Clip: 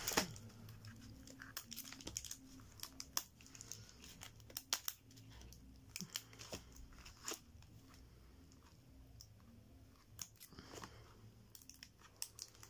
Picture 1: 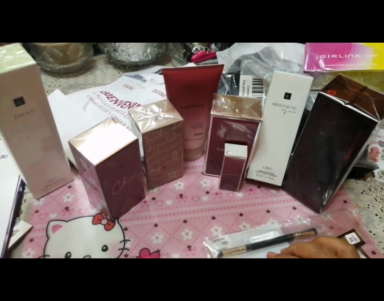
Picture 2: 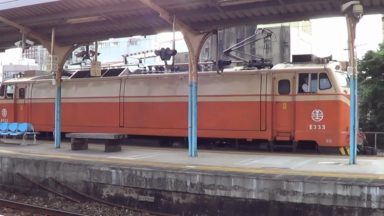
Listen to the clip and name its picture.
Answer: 1